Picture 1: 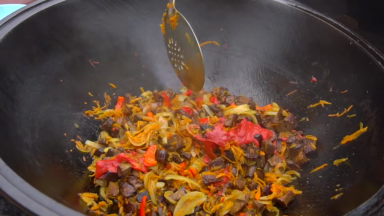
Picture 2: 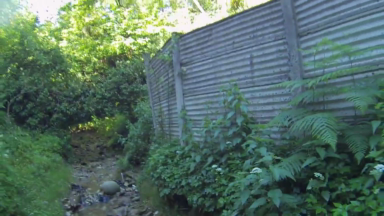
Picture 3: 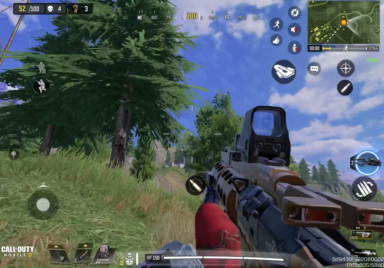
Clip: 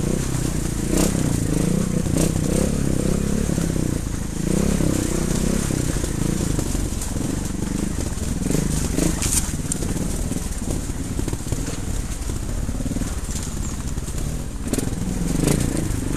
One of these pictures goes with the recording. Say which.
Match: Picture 2